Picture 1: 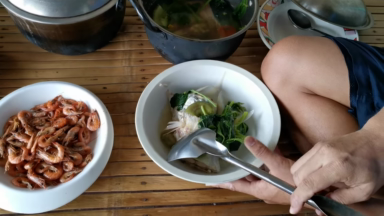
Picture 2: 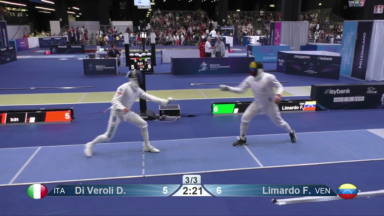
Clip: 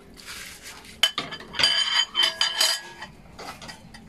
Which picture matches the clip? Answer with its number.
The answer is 1